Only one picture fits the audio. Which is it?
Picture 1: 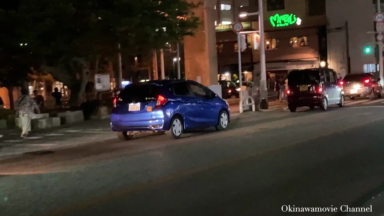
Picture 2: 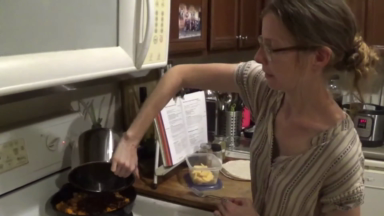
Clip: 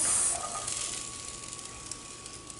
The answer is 2